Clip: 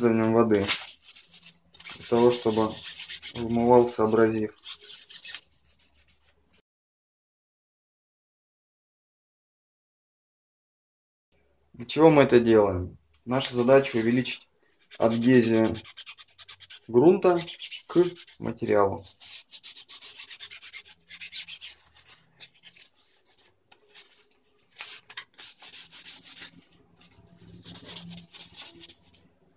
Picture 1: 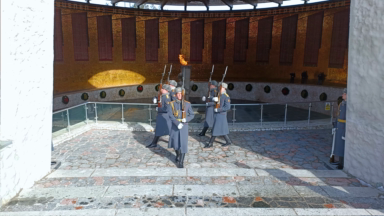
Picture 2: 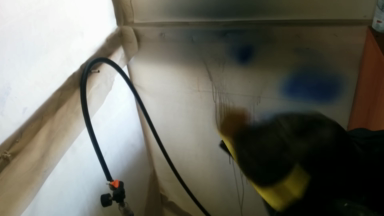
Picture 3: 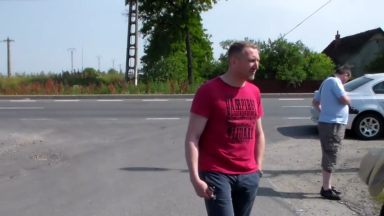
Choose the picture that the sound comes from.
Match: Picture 2